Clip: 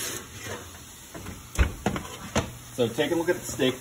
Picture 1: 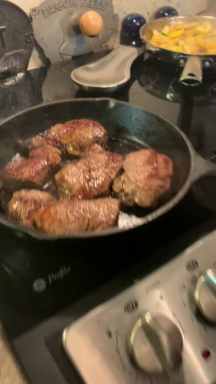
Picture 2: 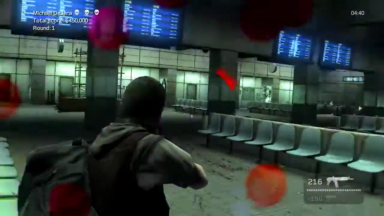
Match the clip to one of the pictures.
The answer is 1